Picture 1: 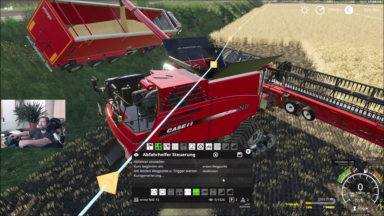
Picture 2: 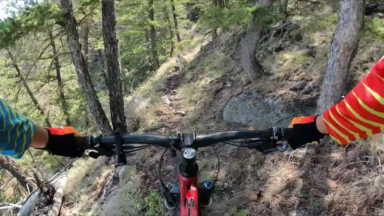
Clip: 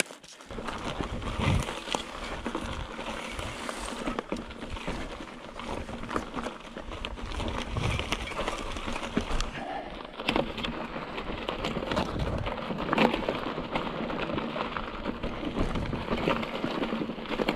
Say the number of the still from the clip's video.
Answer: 2